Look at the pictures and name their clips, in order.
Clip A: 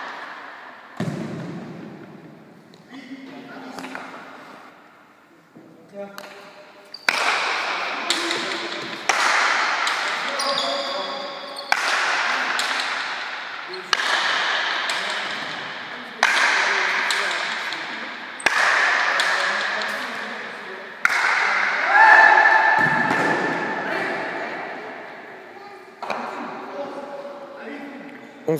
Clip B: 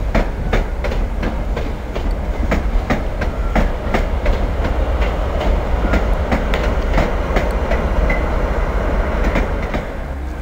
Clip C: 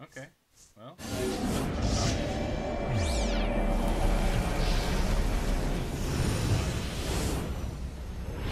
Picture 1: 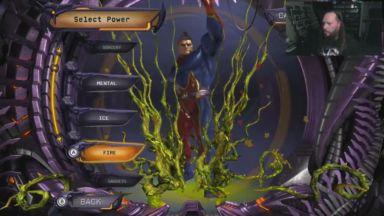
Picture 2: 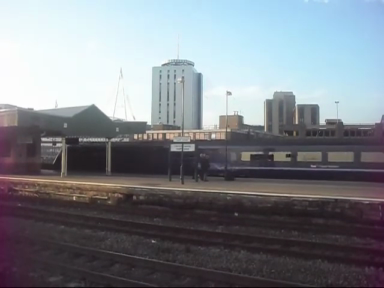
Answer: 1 C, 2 B